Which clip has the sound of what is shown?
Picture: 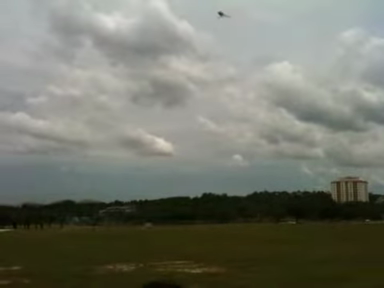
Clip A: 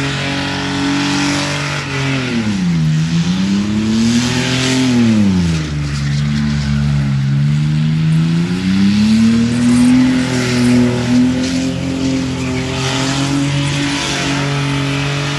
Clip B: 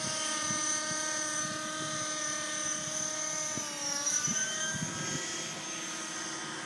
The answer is B